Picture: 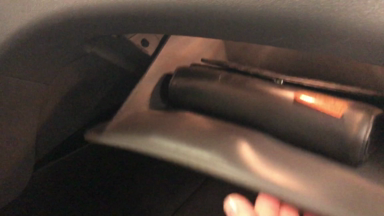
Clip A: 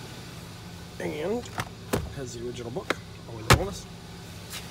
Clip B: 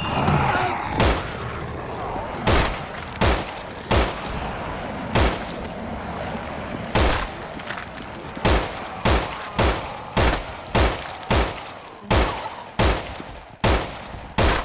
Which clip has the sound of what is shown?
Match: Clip A